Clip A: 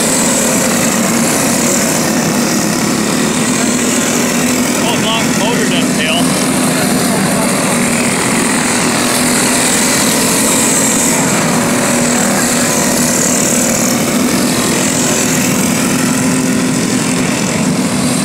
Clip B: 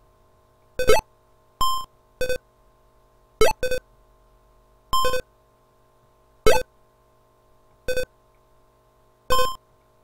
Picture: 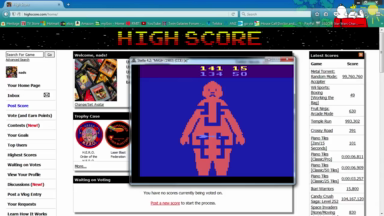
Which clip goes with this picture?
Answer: B